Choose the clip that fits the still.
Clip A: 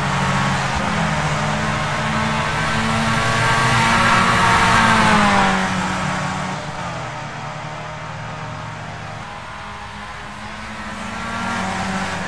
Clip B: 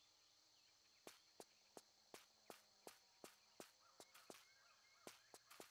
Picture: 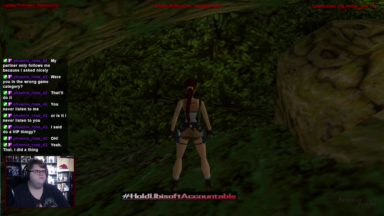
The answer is B